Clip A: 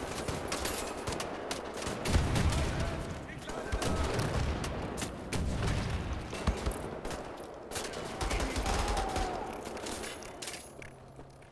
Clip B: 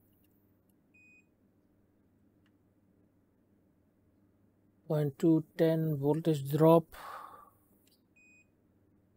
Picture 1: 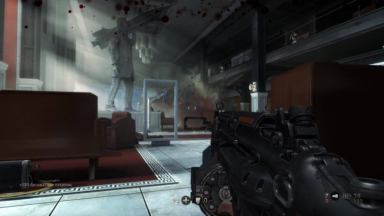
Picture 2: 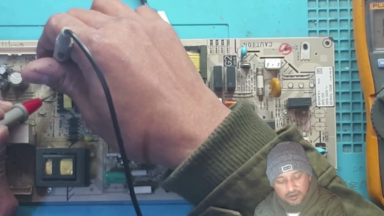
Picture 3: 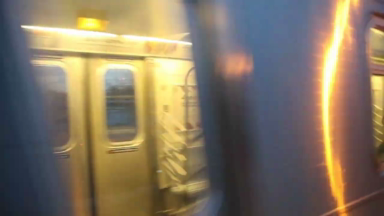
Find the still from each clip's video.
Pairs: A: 1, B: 2